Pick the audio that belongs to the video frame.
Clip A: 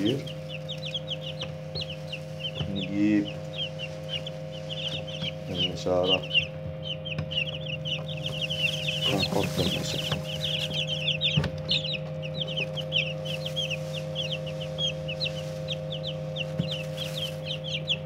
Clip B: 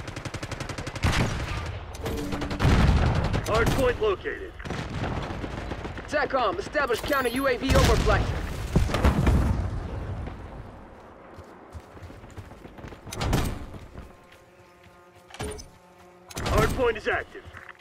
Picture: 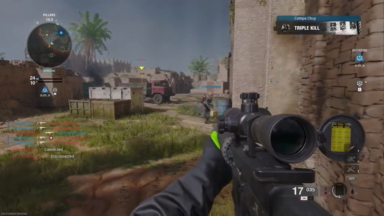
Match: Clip B